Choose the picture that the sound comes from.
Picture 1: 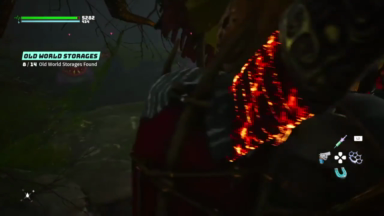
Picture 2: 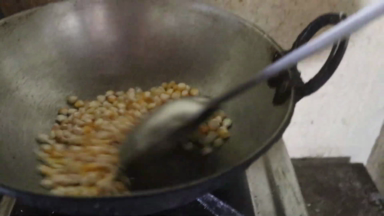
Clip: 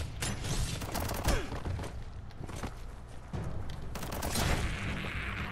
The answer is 1